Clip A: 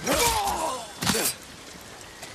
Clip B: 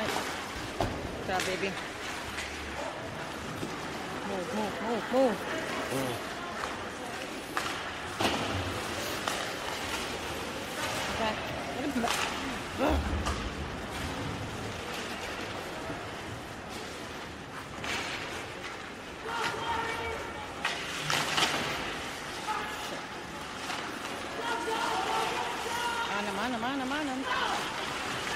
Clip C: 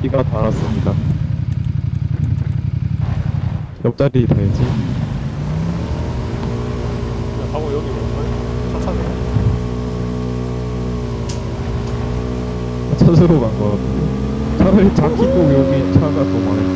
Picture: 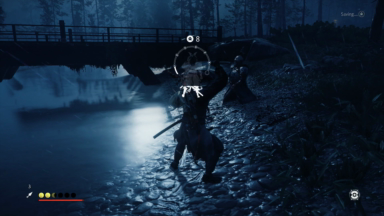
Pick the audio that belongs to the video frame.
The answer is A